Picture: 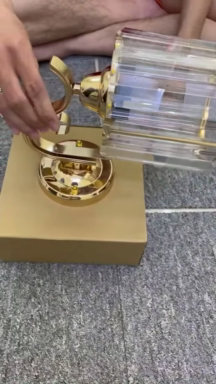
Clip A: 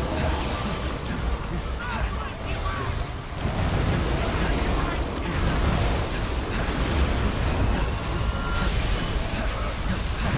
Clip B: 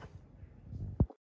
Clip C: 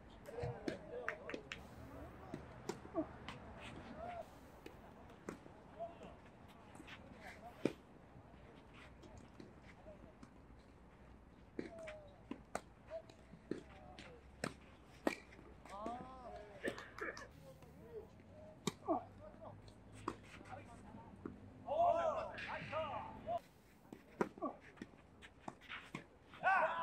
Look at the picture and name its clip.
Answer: B